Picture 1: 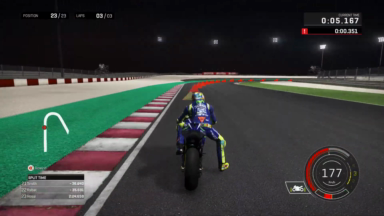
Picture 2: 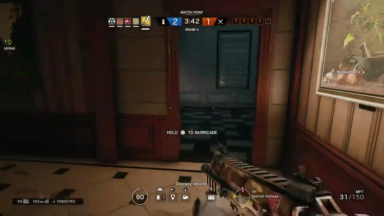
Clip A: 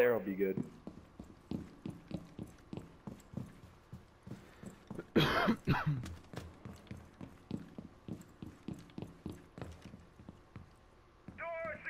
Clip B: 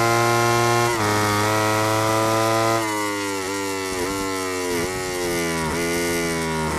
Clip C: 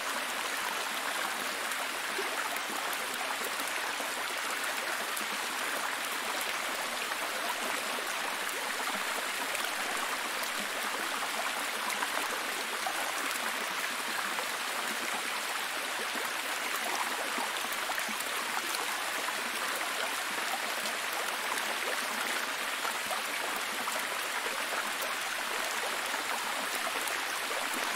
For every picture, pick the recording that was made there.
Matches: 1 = B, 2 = A